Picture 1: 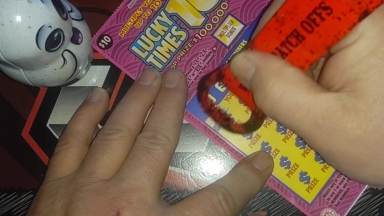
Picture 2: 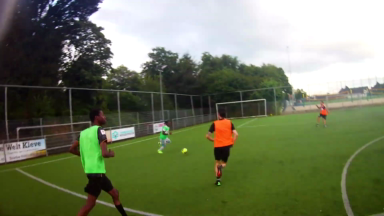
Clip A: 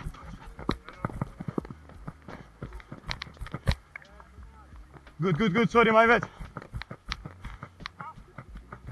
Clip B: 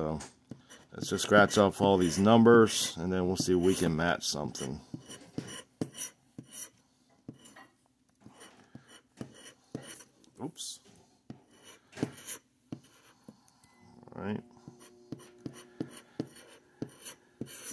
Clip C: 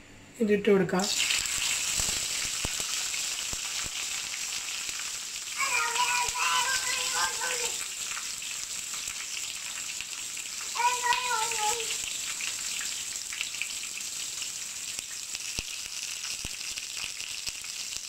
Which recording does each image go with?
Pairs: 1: B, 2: A